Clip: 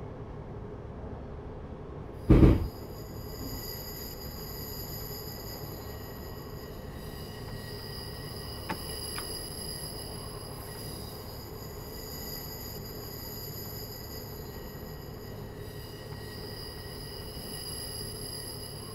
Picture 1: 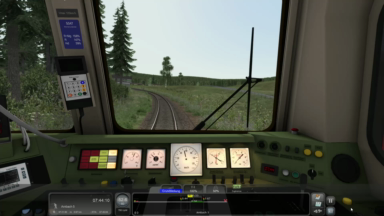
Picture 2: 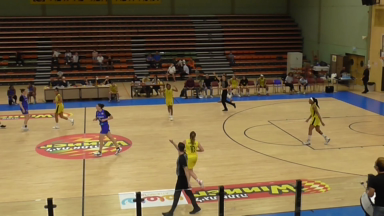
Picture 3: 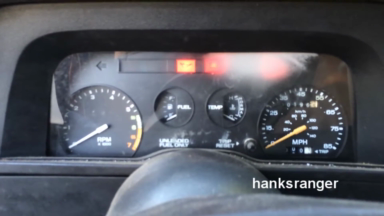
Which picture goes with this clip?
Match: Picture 1